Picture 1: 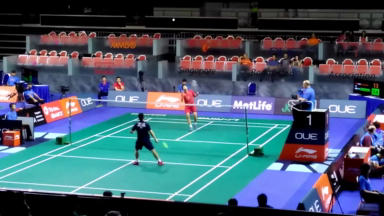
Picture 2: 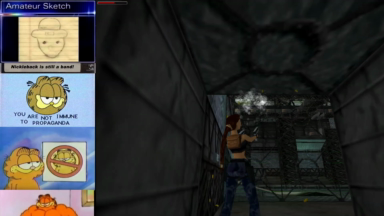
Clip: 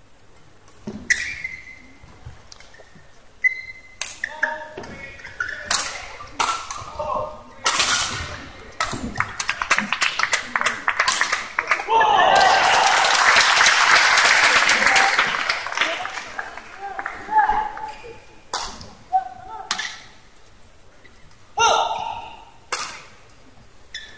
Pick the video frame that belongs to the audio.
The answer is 1